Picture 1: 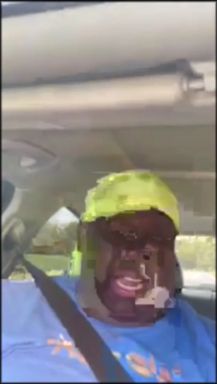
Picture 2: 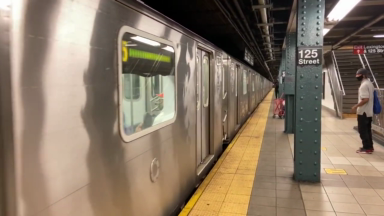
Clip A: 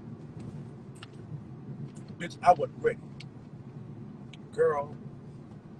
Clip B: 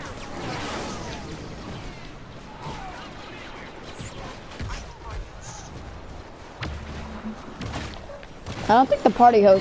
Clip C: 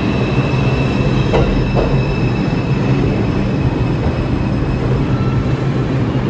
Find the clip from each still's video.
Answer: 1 A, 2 C